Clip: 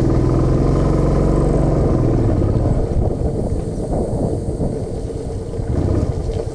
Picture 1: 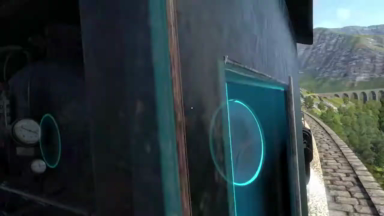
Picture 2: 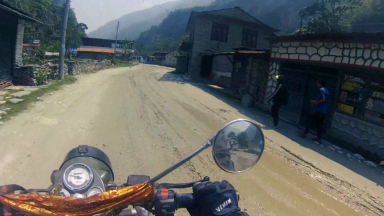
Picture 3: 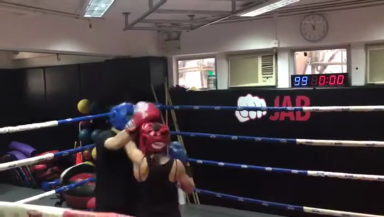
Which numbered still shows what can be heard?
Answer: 2